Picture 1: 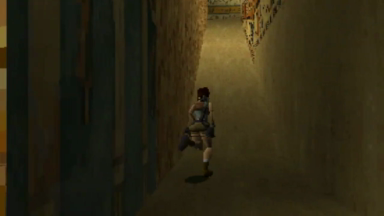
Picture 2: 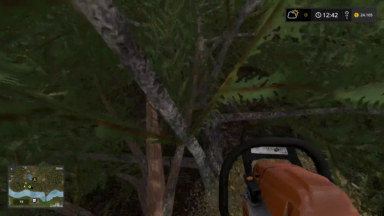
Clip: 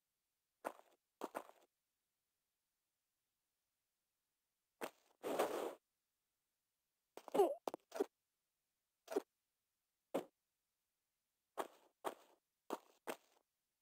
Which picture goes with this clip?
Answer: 1